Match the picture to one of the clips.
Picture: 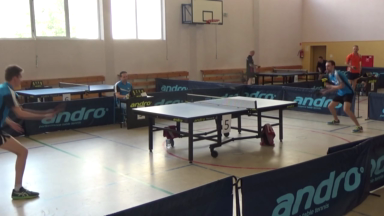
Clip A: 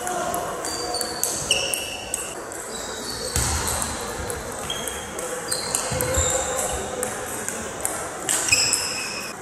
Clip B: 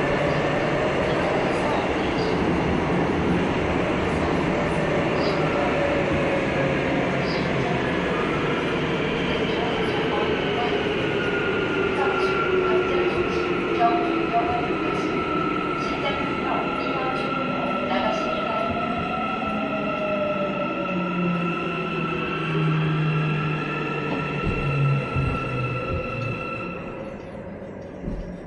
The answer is A